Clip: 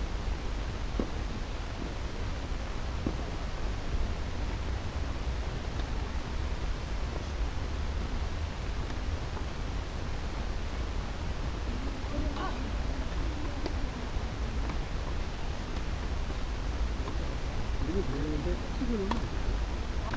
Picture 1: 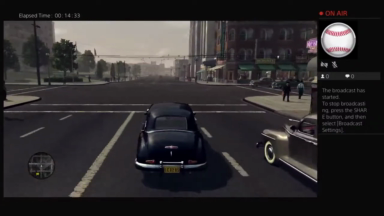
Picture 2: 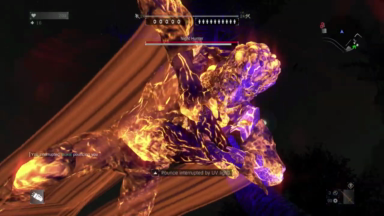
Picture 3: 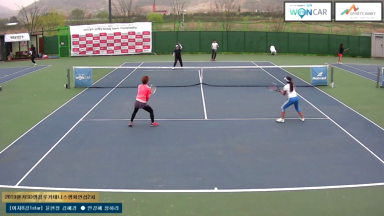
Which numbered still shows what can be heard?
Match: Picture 3